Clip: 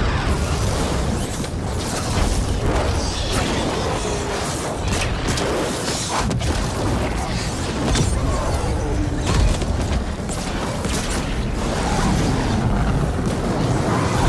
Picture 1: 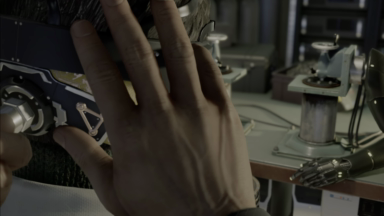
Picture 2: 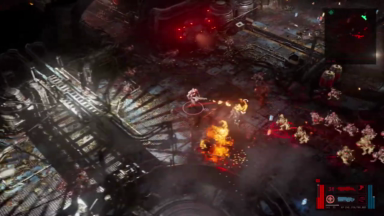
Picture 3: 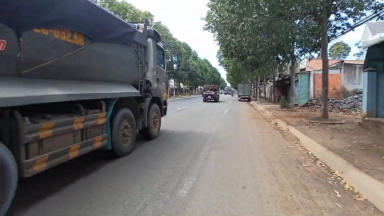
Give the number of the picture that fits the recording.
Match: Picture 2